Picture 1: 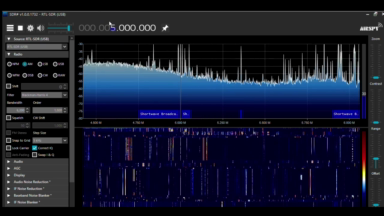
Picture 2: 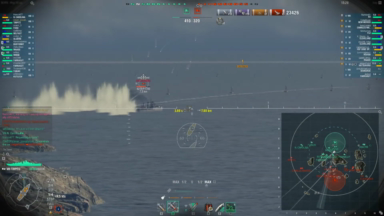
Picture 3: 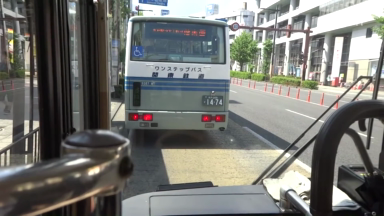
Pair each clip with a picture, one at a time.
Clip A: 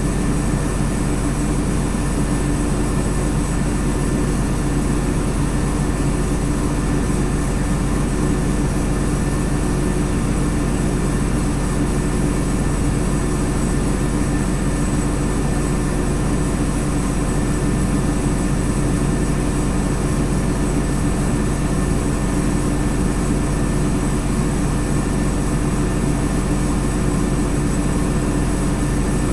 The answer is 3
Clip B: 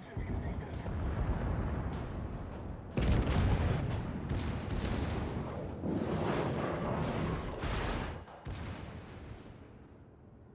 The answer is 2